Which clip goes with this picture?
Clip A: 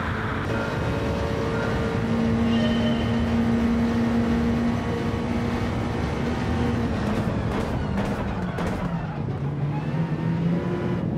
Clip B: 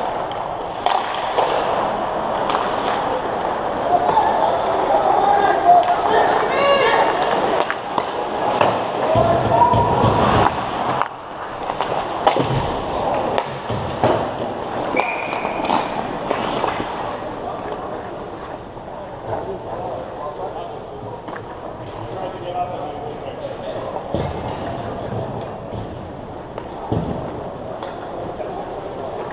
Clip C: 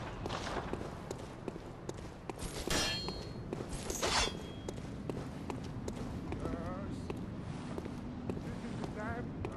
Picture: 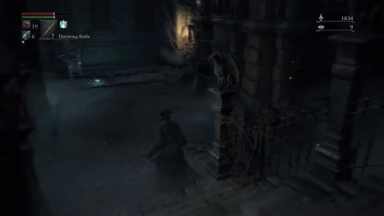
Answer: C